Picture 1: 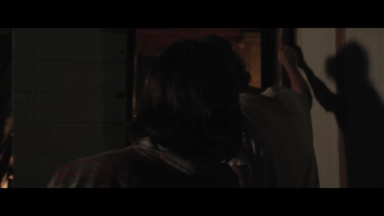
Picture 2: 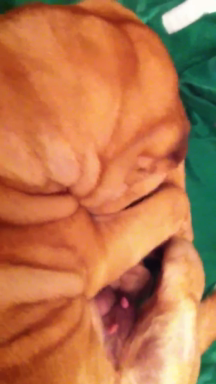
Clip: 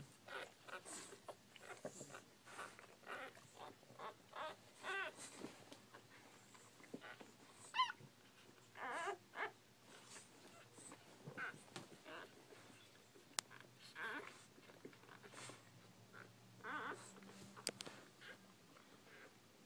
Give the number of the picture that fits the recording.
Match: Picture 2